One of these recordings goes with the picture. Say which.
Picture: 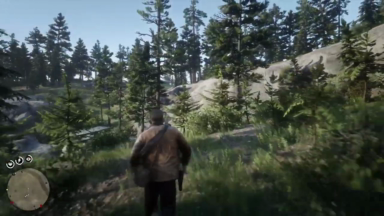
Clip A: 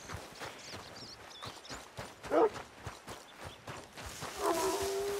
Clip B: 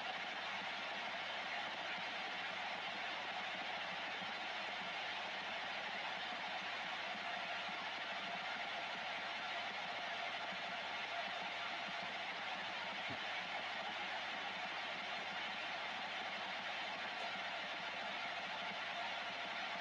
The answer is A